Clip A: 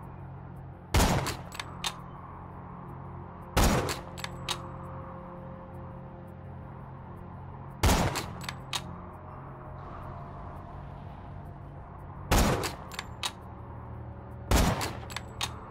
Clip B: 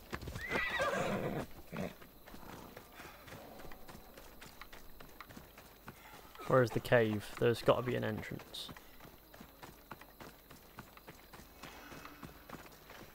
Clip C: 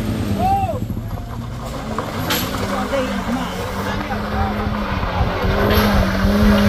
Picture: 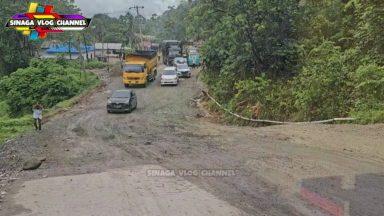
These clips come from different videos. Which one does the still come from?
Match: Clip C